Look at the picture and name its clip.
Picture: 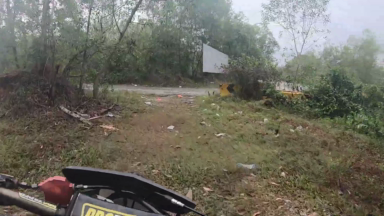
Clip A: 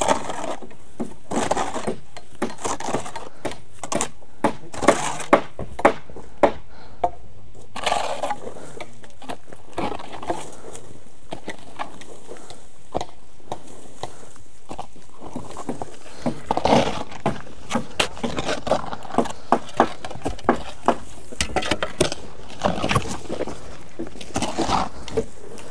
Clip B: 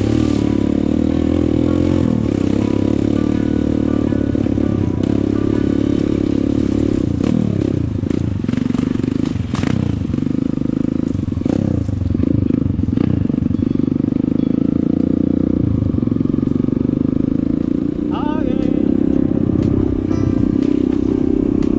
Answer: B